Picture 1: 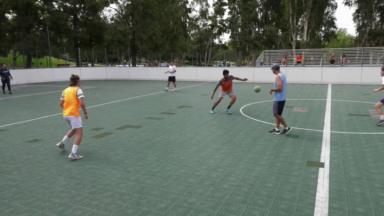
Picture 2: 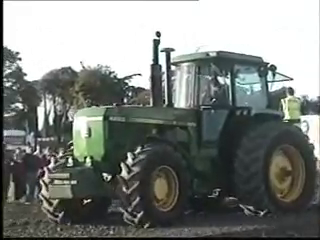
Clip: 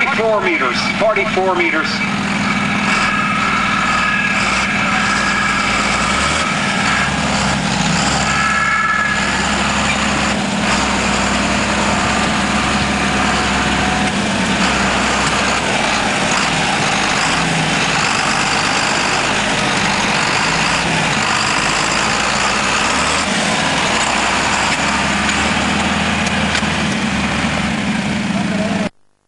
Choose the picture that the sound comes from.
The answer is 2